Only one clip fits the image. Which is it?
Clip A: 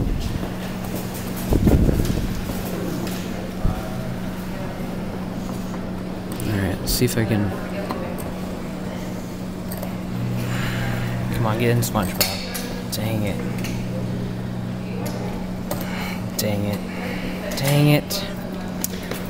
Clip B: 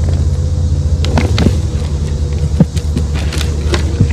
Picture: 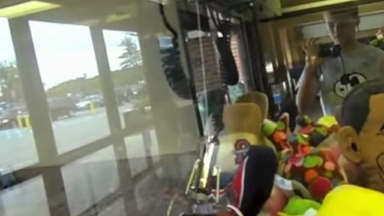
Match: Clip A